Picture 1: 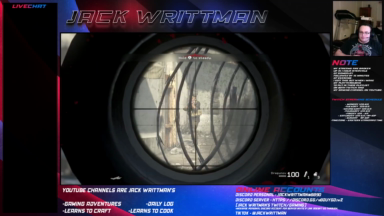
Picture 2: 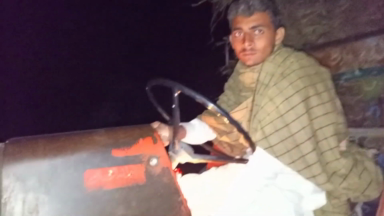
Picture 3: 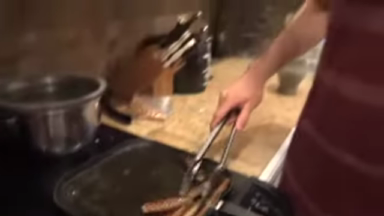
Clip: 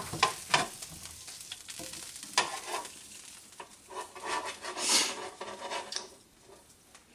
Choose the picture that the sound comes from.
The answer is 3